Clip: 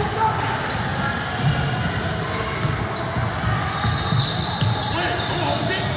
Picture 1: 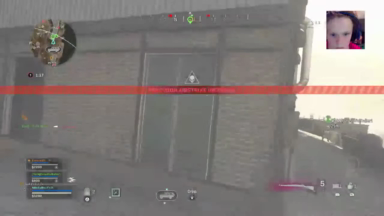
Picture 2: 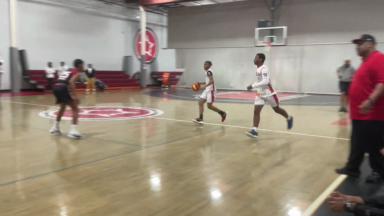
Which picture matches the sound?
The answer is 2